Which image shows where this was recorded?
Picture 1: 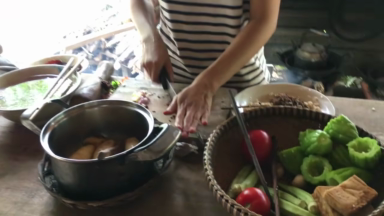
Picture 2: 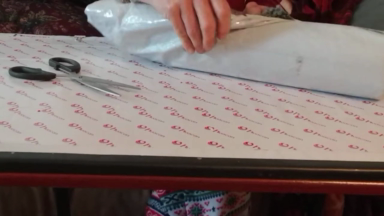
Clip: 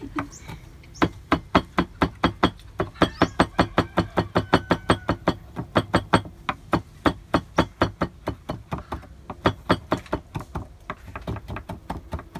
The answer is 1